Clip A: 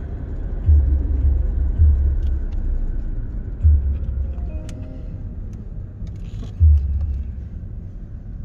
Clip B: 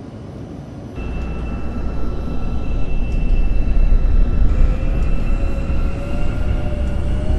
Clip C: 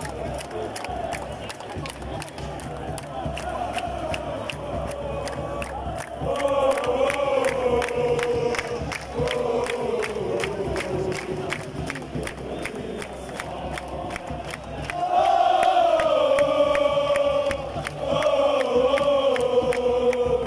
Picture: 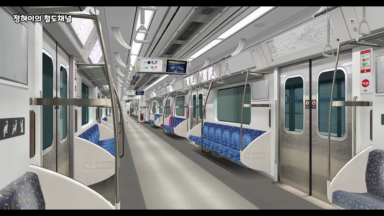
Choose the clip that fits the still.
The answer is B